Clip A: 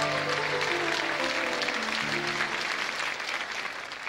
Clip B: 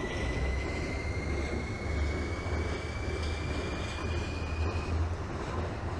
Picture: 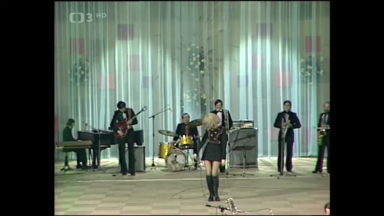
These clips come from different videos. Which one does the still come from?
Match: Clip A